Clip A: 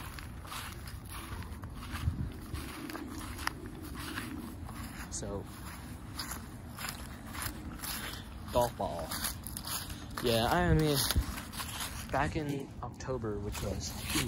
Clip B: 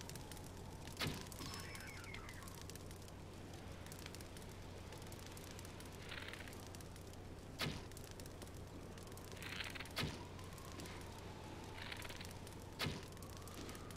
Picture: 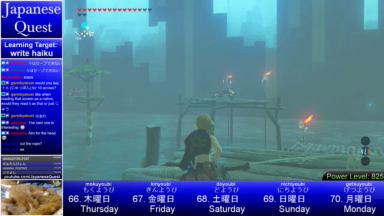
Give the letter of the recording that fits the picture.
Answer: B